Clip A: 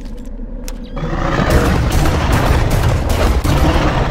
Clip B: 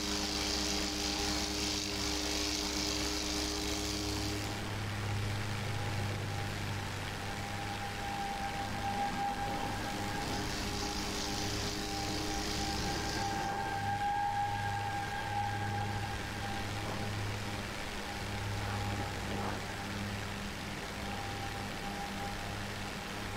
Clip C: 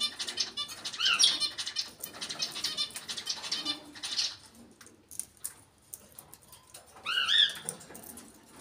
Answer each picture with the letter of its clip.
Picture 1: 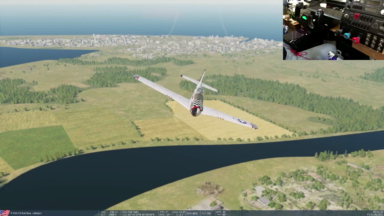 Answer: B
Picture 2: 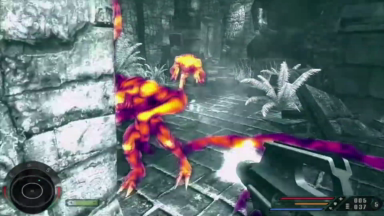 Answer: A